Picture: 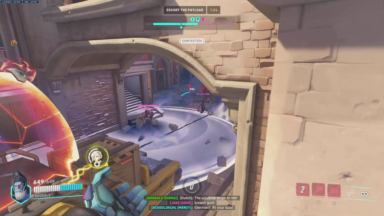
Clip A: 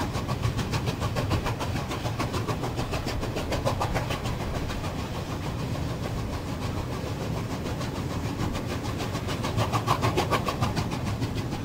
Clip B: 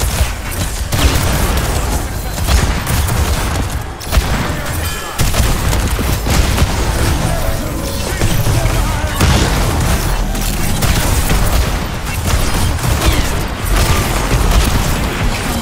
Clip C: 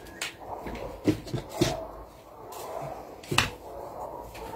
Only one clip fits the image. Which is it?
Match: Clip B